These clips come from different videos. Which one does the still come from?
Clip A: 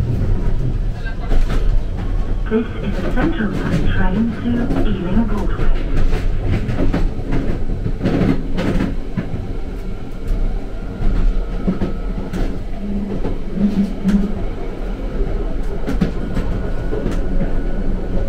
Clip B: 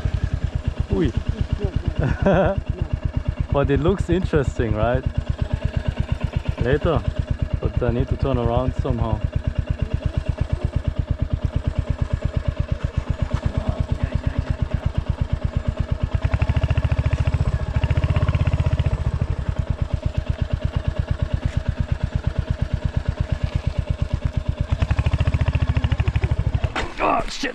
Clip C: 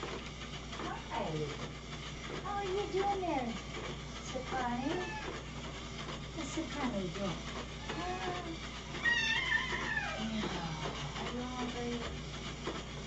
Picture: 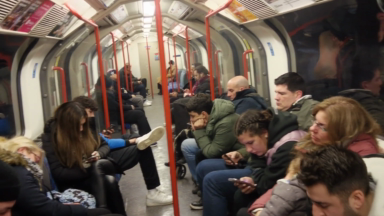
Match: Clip A